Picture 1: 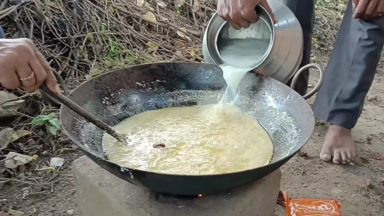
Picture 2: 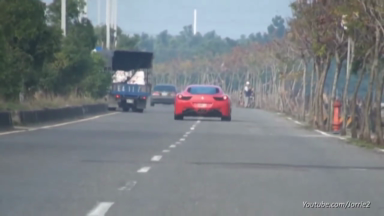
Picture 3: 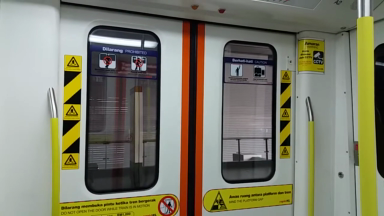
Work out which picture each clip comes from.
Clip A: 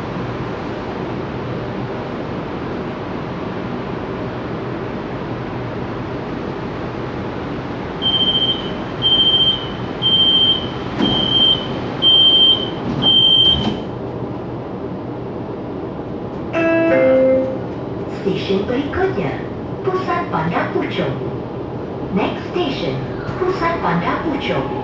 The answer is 3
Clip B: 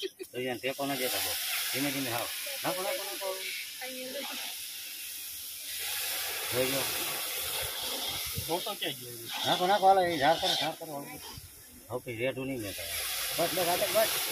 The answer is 1